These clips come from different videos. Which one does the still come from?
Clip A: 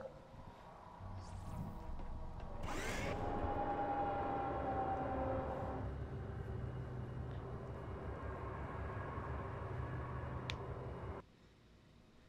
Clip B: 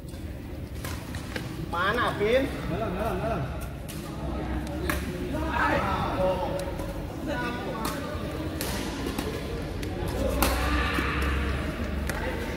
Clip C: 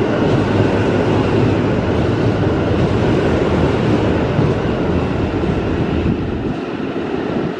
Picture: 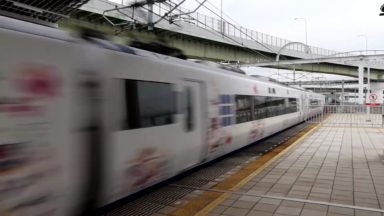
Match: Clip C